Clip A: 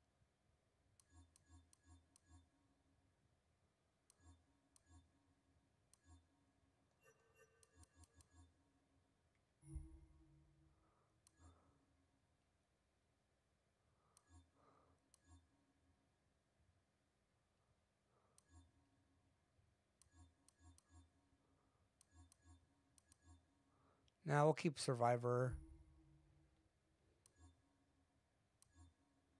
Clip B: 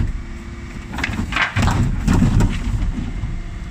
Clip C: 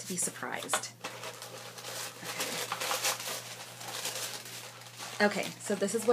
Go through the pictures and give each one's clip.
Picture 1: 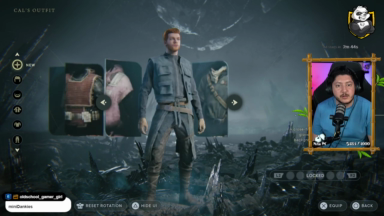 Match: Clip A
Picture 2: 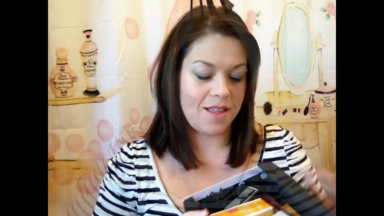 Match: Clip C